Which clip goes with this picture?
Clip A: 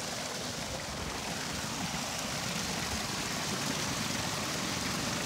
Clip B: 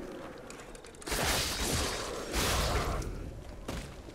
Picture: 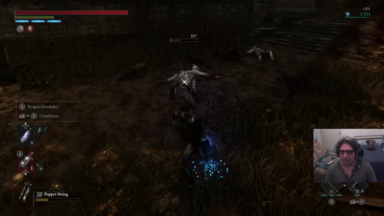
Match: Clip B